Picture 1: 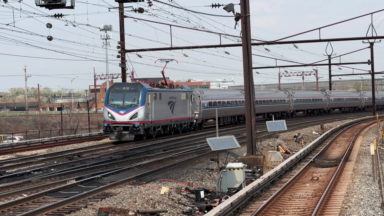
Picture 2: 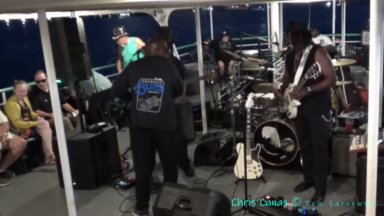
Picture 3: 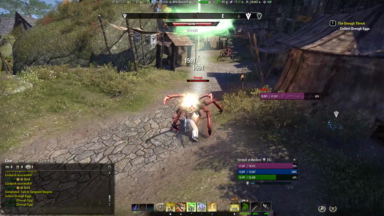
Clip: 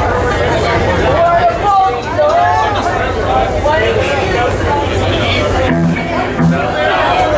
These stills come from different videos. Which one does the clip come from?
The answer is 2